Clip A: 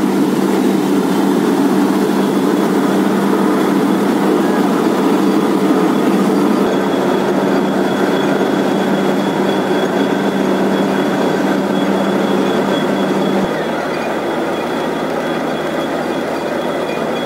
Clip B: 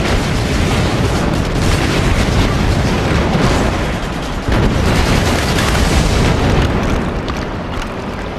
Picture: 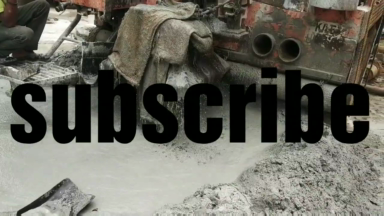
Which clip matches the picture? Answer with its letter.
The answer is A